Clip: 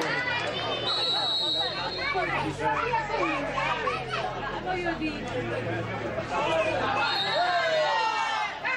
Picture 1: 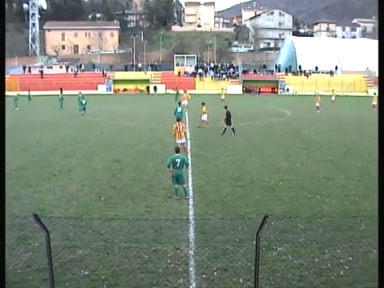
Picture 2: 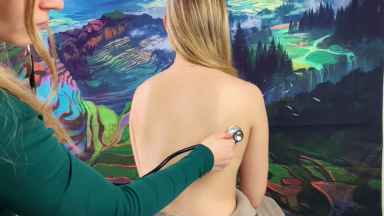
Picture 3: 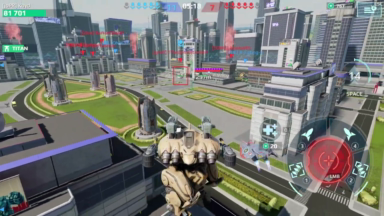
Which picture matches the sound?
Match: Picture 1